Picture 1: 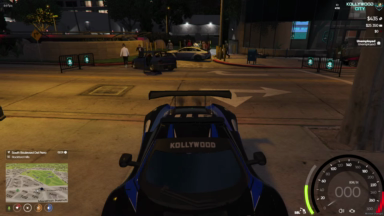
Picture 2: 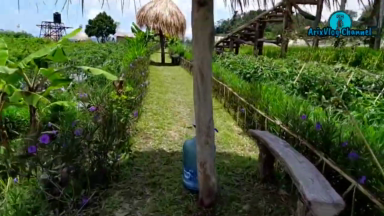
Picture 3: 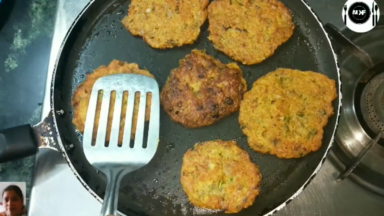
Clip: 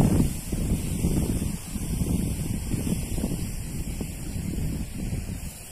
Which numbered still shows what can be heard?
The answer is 2